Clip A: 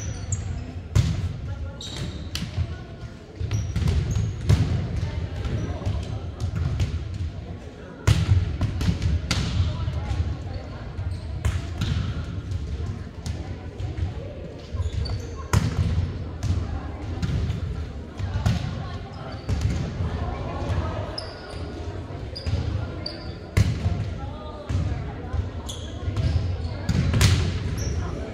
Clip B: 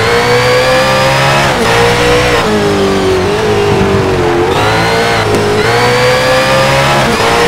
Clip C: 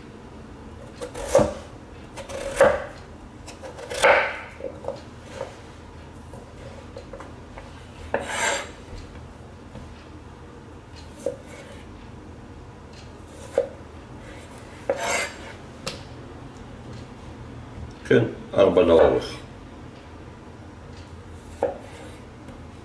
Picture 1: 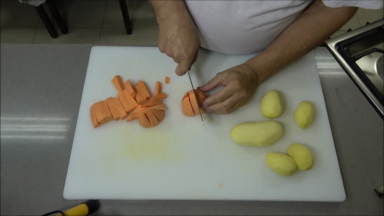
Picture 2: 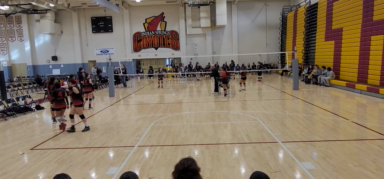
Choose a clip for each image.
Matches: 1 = C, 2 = A